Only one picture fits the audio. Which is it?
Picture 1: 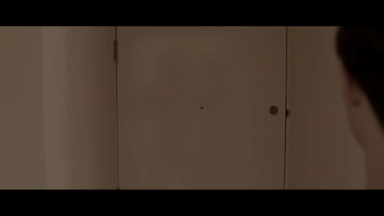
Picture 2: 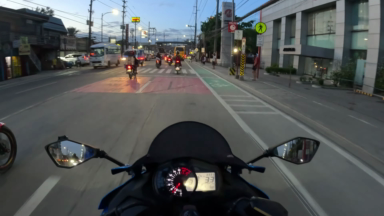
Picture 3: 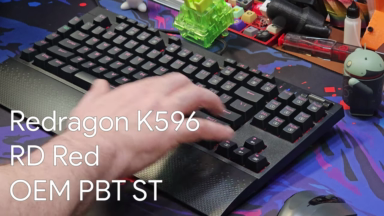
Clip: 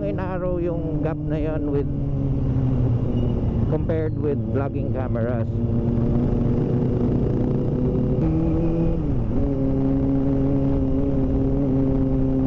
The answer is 2